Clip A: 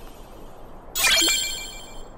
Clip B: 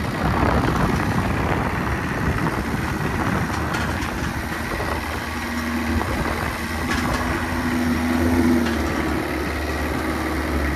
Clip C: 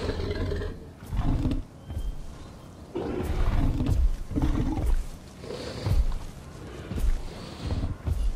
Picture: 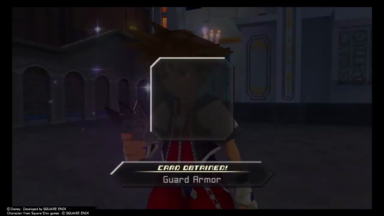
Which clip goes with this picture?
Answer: A